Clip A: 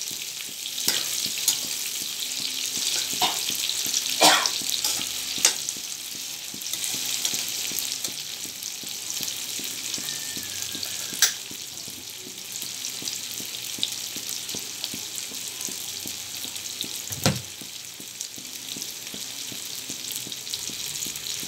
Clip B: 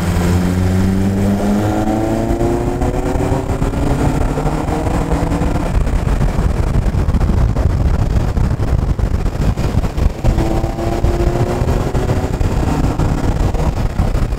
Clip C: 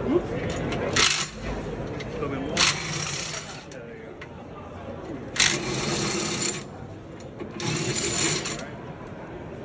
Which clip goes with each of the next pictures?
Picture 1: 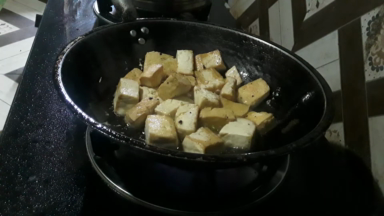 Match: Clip A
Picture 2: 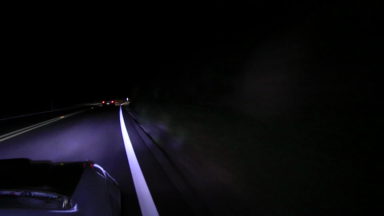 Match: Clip B